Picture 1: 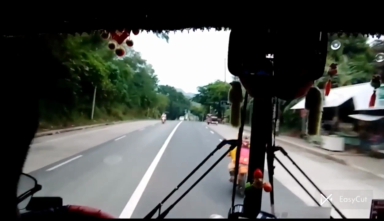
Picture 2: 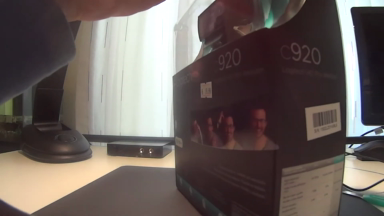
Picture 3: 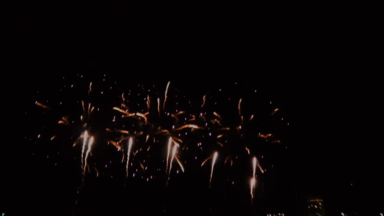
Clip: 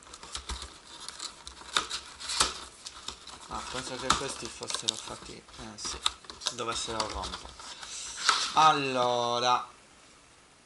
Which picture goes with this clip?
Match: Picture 2